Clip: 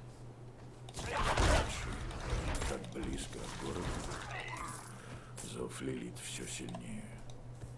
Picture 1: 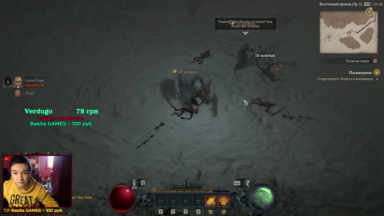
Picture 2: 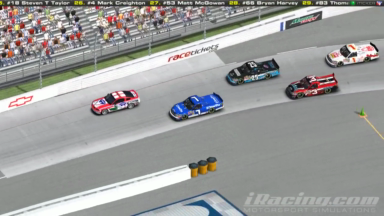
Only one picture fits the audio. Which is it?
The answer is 1